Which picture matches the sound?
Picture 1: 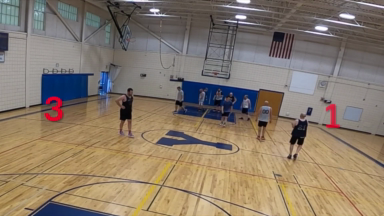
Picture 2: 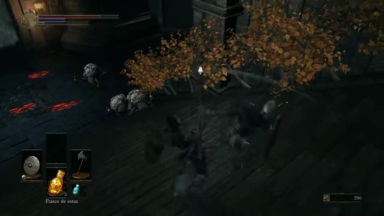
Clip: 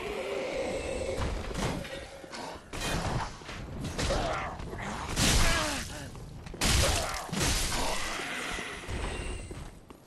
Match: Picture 2